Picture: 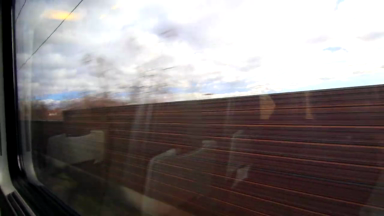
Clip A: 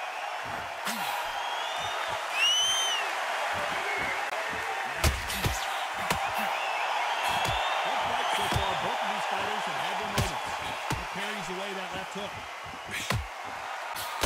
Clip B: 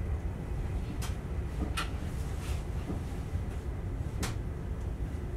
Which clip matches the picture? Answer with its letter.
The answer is B